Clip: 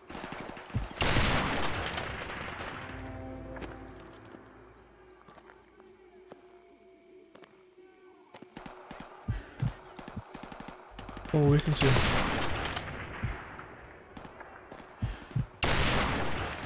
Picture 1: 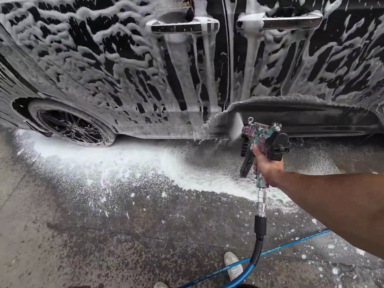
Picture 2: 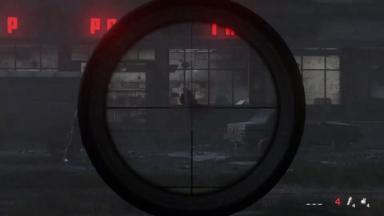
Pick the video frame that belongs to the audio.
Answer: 2